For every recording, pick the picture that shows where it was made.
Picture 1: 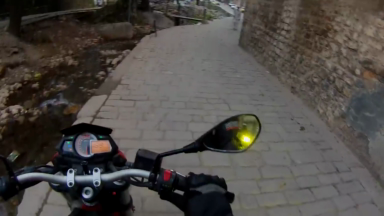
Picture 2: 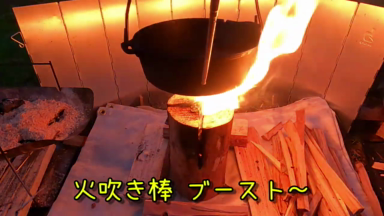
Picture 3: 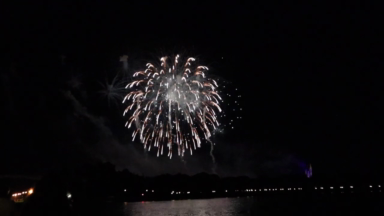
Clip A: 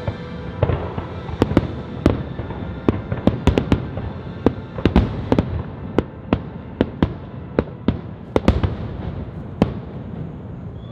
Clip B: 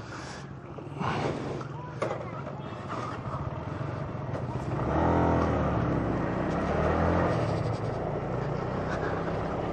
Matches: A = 3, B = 1